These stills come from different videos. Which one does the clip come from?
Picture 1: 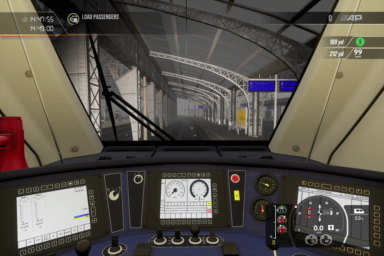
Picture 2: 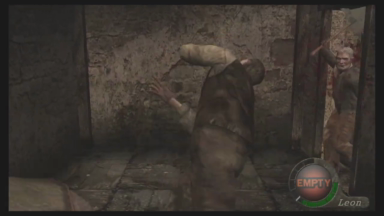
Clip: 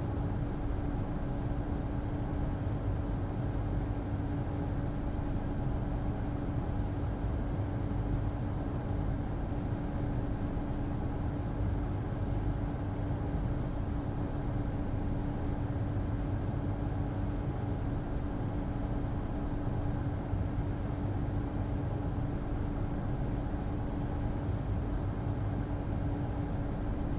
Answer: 1